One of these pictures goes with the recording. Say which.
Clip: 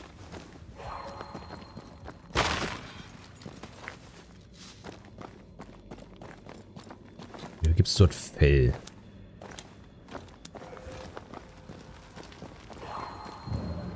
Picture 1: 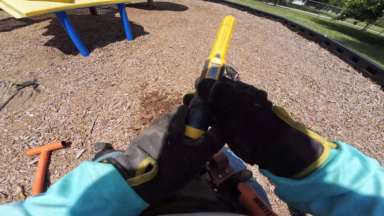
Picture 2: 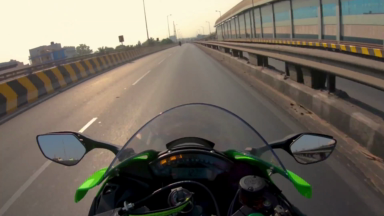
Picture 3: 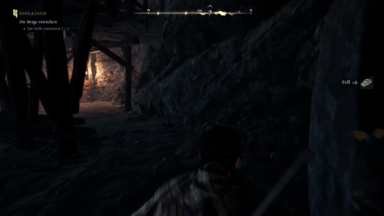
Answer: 3